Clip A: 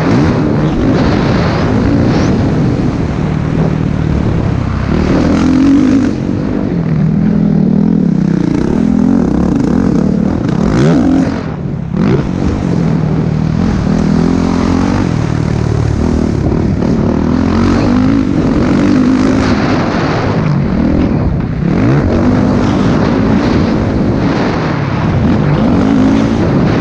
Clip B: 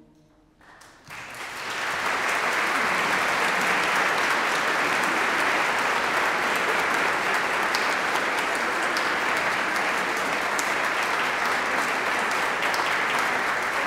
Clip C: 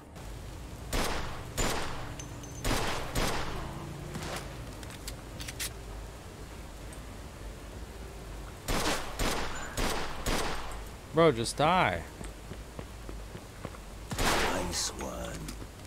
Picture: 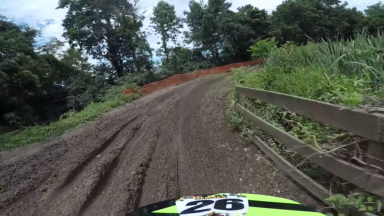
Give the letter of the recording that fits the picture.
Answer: A